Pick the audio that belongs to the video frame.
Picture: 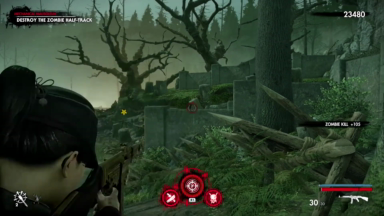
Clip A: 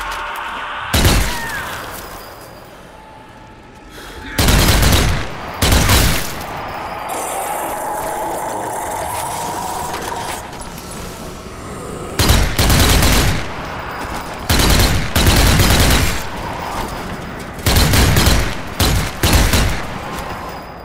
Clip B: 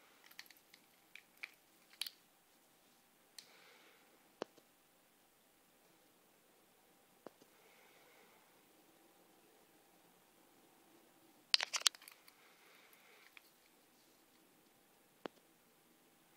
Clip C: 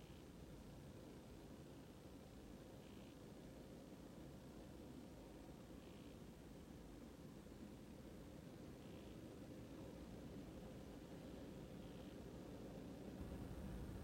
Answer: A